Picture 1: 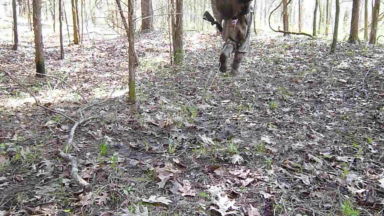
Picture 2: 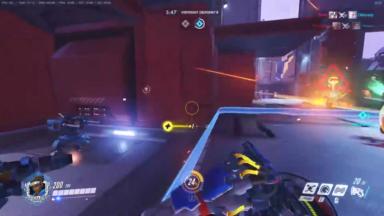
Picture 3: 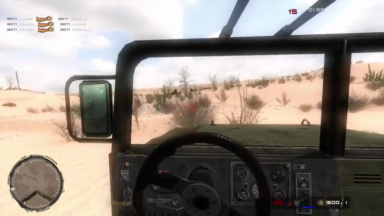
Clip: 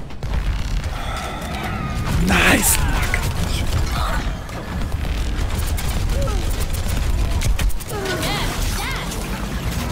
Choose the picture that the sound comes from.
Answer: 2